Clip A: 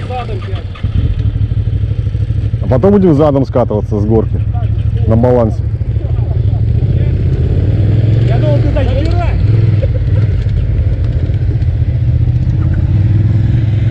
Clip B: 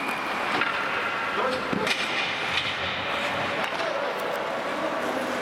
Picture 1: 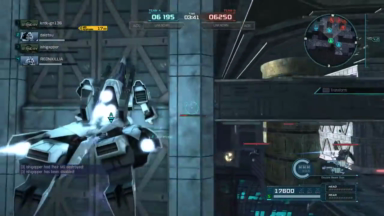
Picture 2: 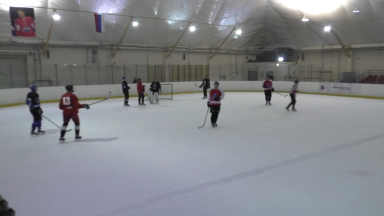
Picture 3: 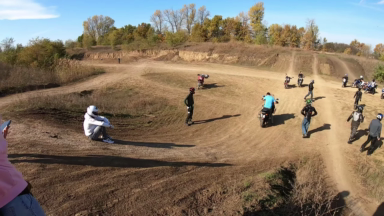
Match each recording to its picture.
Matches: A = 3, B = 2